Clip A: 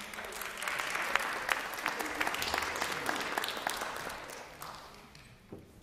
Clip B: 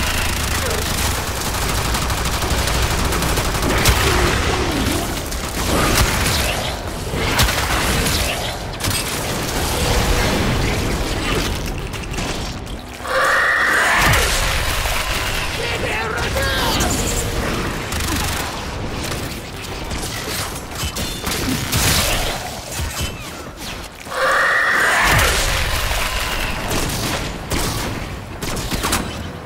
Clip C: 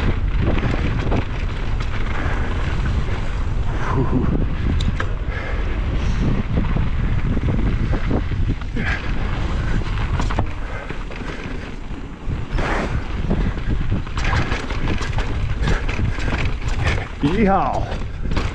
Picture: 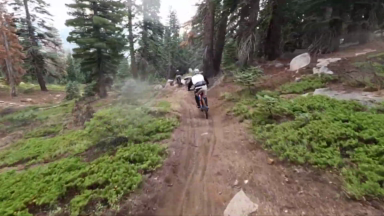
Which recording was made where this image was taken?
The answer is C